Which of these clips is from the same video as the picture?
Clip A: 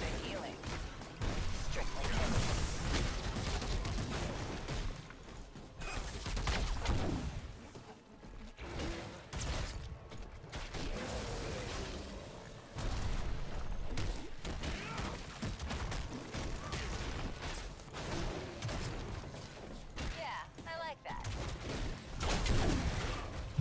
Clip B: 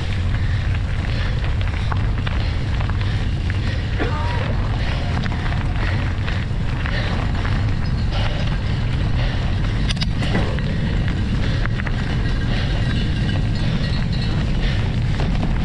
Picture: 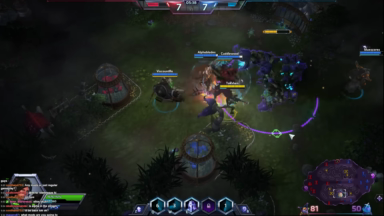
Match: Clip A